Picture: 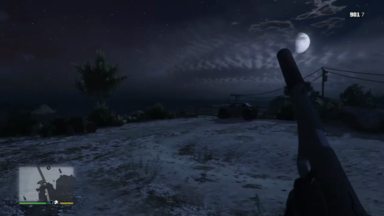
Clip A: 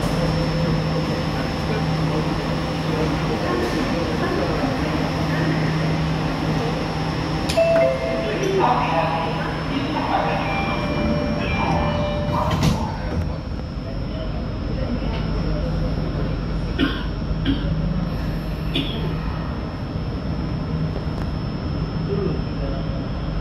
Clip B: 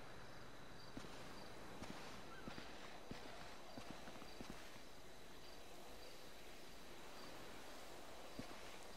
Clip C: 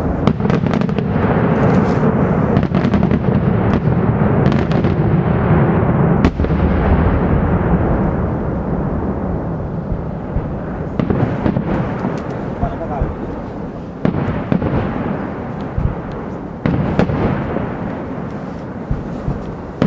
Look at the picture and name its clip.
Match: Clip B